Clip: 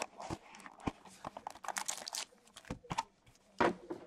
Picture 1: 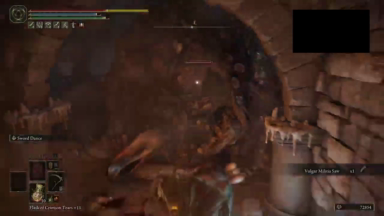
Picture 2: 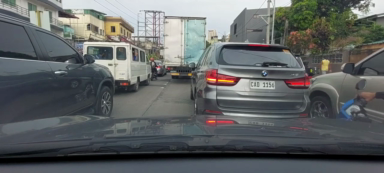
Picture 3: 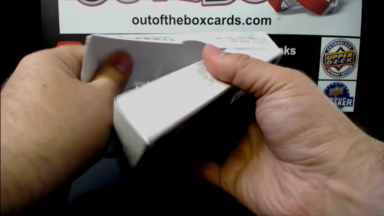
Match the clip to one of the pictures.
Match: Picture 3